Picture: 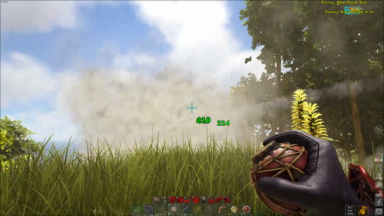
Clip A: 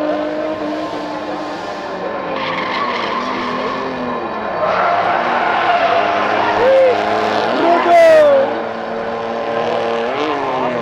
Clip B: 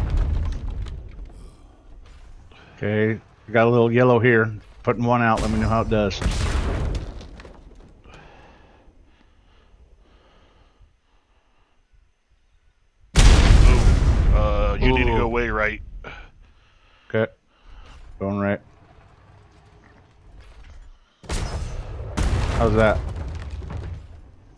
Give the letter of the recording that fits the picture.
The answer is B